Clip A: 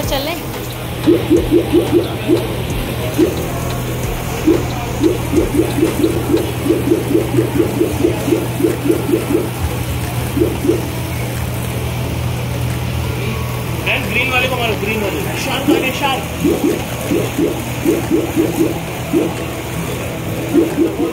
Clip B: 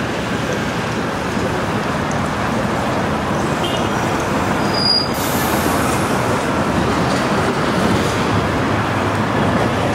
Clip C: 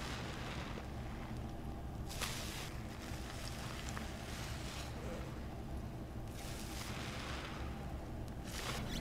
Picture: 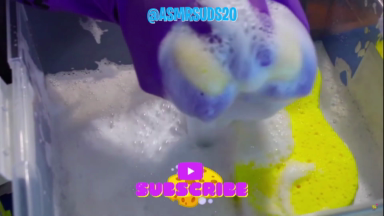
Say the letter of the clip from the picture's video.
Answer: C